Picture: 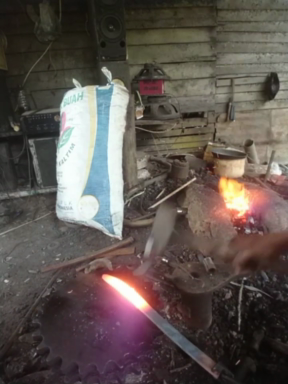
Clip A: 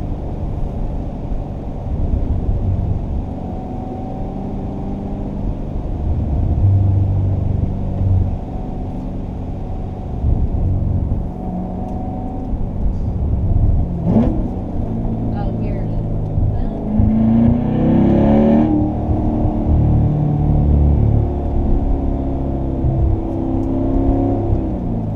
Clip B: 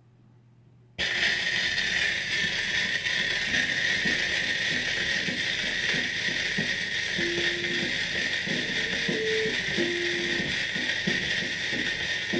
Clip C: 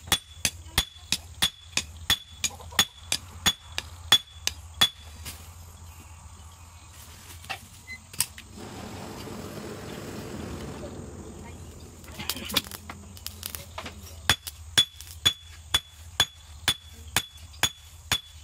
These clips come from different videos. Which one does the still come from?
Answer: C